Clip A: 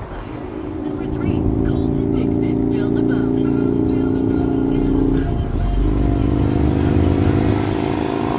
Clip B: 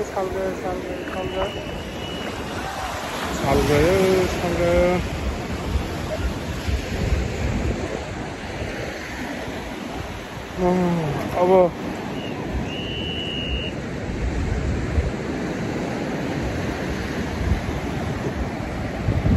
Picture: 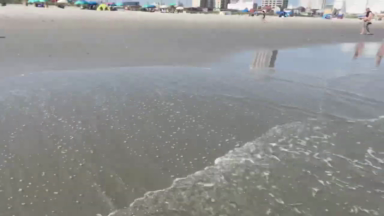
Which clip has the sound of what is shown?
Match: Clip B